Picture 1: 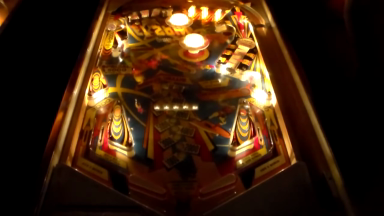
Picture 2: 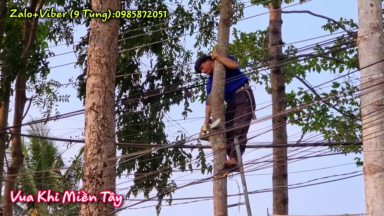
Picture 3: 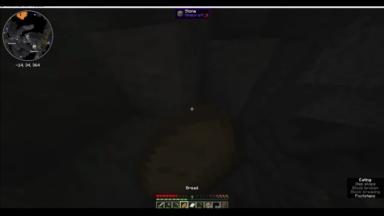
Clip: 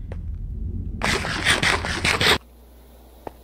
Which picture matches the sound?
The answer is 3